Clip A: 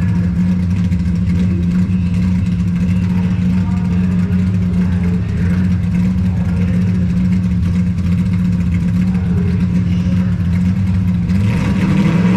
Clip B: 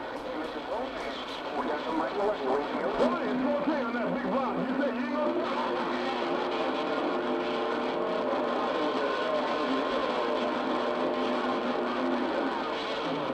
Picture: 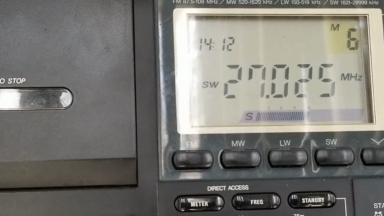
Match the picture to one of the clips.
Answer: B